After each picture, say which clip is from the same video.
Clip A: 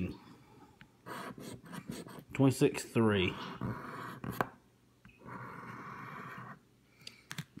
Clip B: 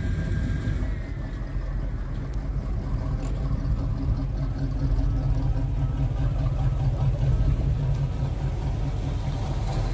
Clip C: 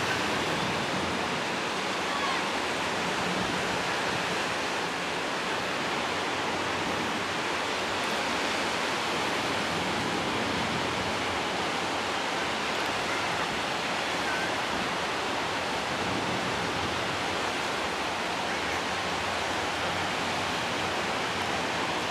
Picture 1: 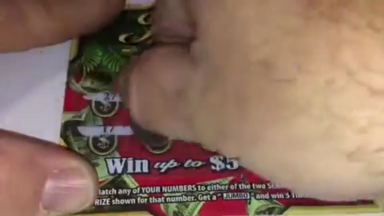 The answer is A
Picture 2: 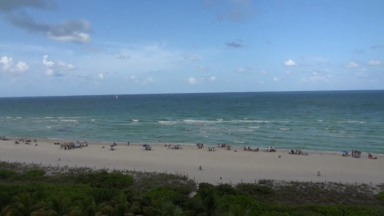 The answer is C